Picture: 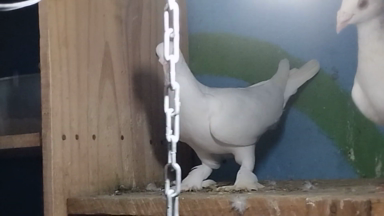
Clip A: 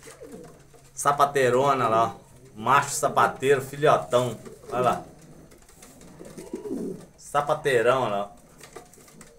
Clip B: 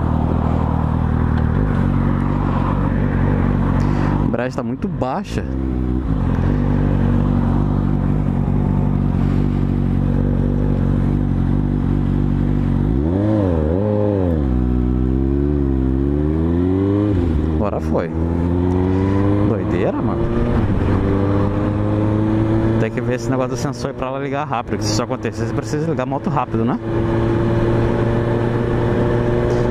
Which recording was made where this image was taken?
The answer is A